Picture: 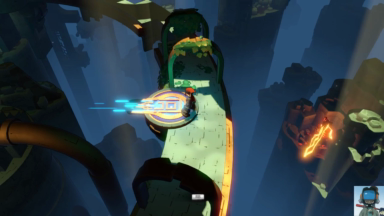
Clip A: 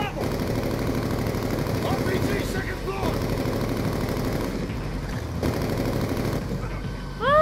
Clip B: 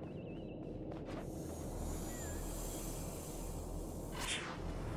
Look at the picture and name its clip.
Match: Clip B